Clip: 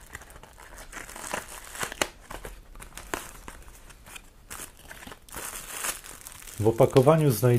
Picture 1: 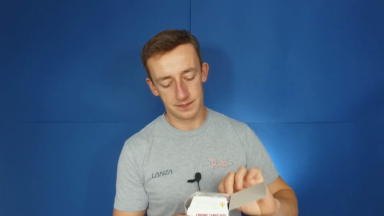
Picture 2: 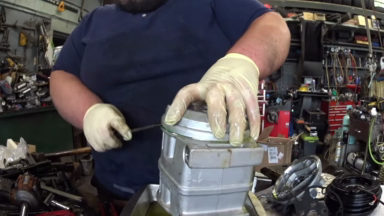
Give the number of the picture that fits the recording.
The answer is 1